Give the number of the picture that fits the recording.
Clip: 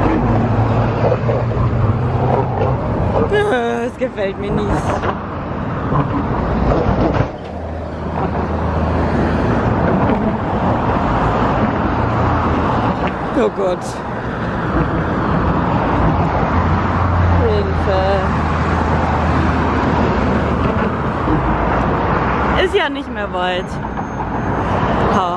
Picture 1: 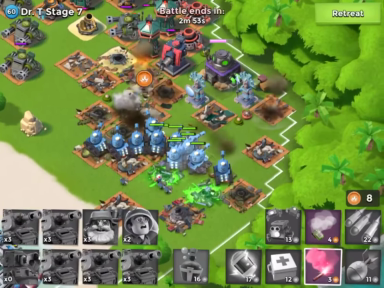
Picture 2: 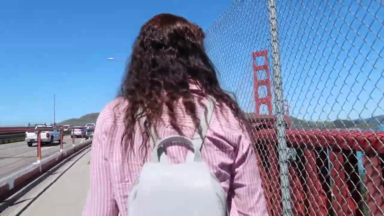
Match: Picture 2